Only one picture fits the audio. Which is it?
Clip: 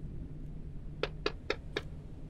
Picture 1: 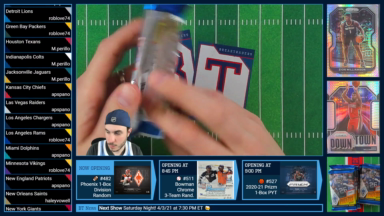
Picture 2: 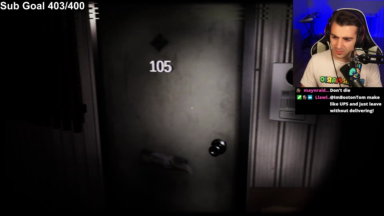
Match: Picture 2